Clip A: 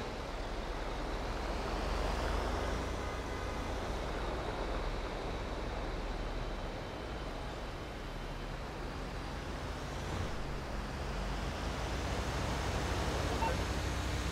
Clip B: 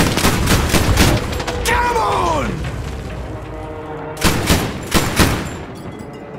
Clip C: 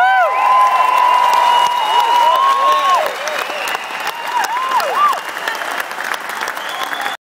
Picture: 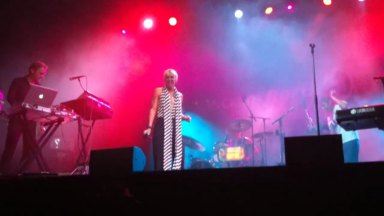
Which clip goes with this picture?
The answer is C